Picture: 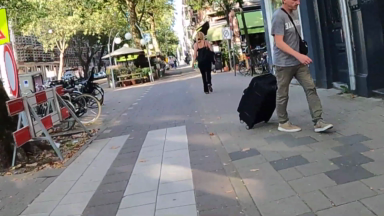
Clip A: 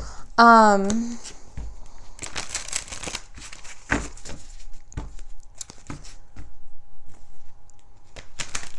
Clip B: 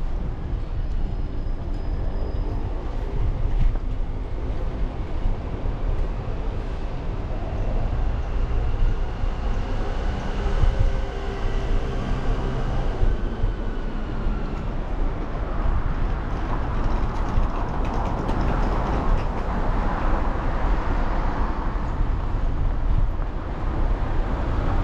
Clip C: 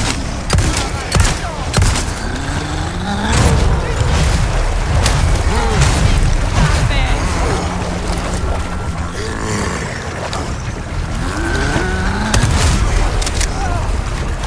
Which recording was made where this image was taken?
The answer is B